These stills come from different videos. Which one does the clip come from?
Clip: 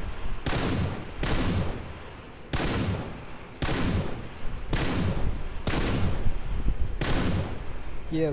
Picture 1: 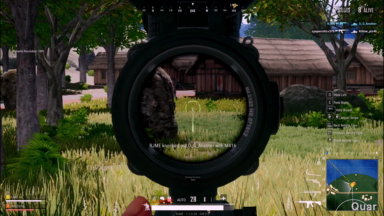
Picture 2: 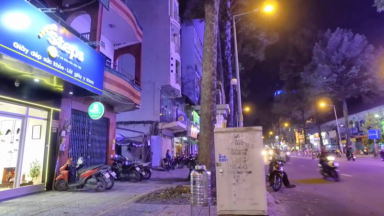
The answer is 1